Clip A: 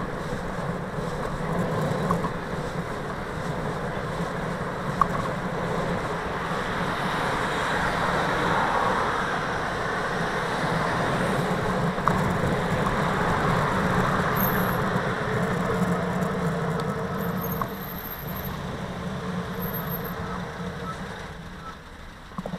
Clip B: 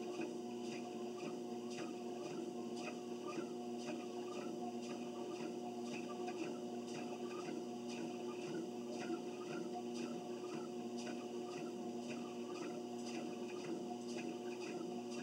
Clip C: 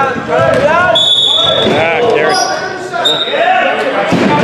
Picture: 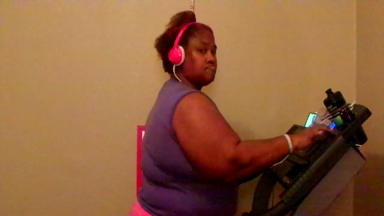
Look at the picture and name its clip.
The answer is B